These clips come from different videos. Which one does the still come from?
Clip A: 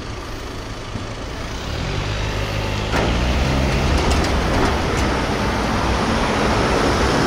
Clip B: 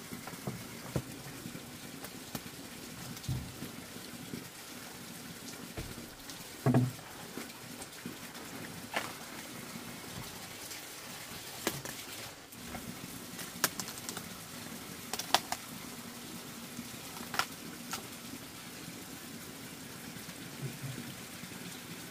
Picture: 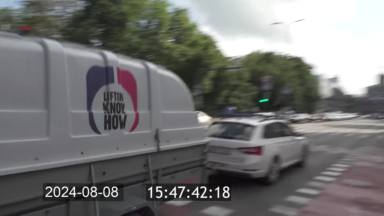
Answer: A